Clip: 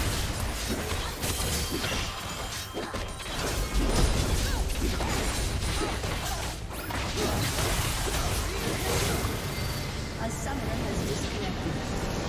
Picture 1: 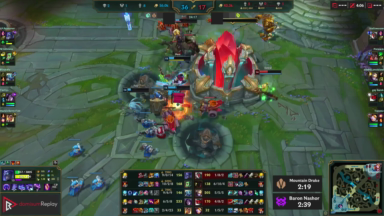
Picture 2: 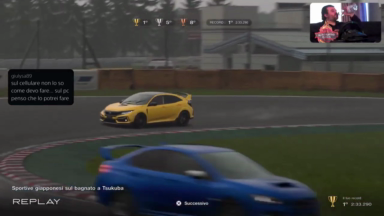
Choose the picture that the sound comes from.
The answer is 1